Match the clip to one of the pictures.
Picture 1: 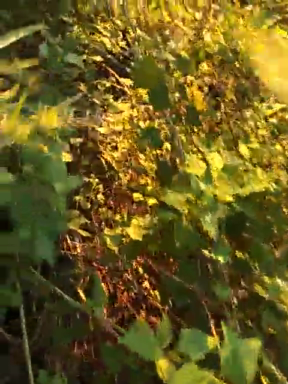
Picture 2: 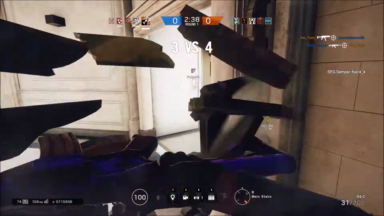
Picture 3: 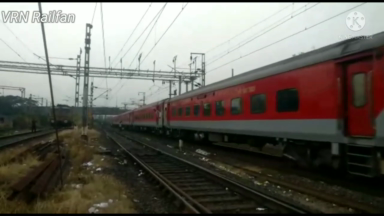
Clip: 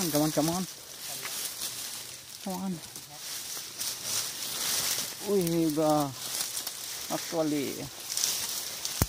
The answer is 1